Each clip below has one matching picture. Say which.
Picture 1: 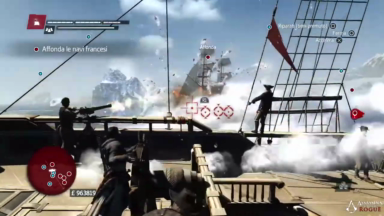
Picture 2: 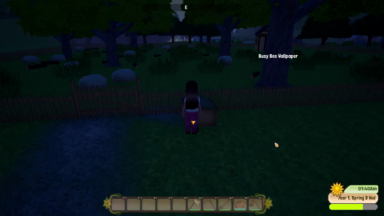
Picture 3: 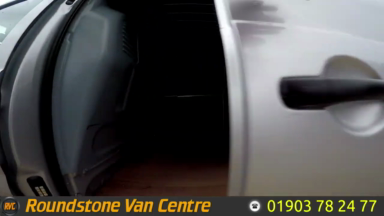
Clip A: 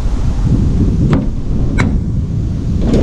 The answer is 3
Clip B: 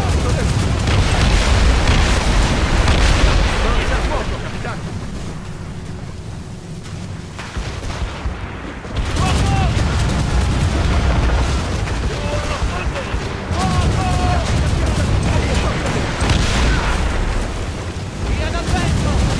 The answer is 1